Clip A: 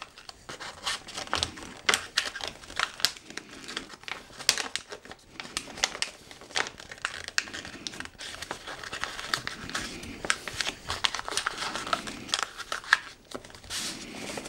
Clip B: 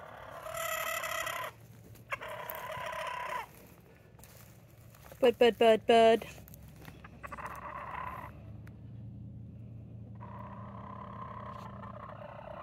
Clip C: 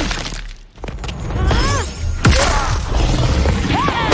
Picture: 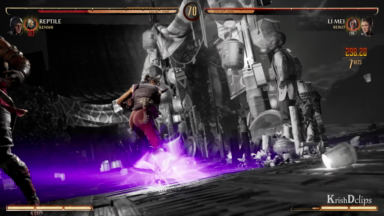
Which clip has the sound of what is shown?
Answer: C